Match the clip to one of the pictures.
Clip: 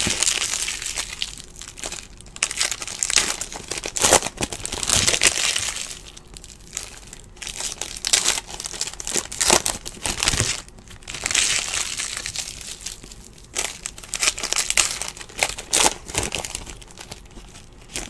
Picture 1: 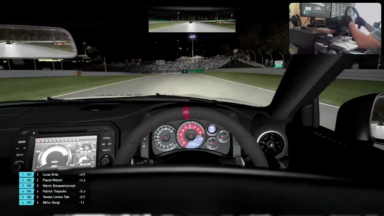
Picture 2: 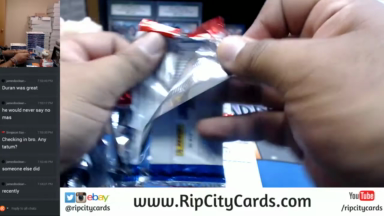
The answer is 2